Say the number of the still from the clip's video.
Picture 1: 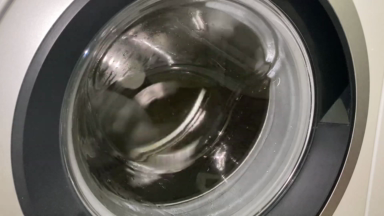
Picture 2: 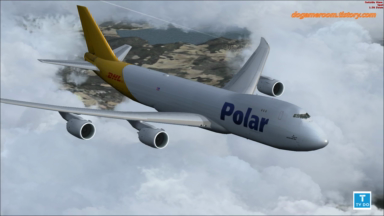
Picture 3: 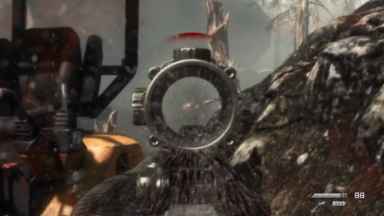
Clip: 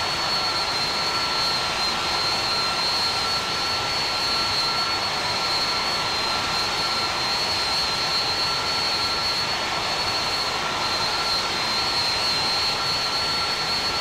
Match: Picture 2